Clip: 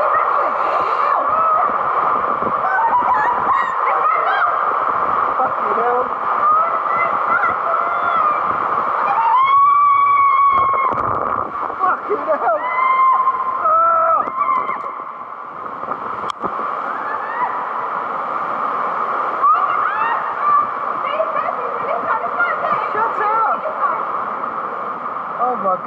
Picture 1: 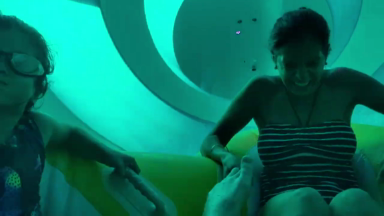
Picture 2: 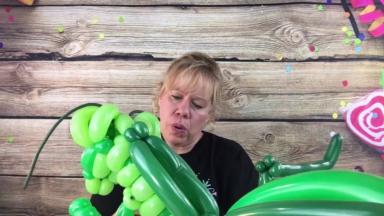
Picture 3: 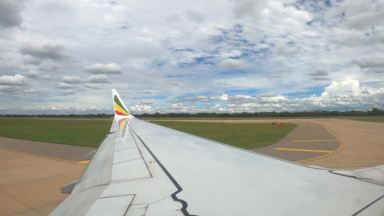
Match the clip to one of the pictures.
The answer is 1